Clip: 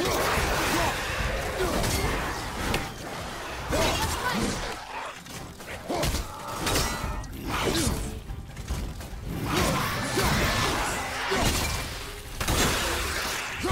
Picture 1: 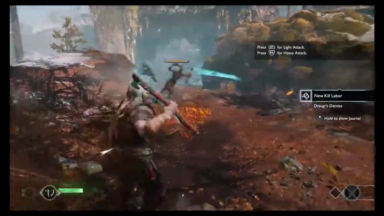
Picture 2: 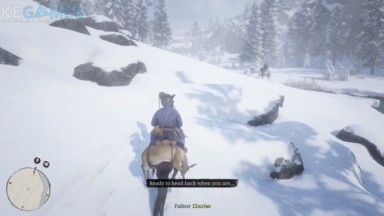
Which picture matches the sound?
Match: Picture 1